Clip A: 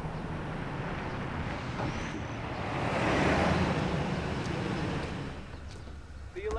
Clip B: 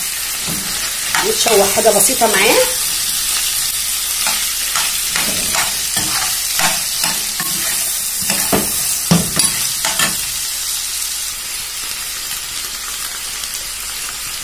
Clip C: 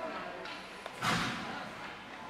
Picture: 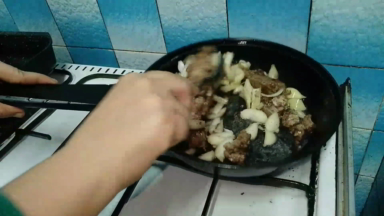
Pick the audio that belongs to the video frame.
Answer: B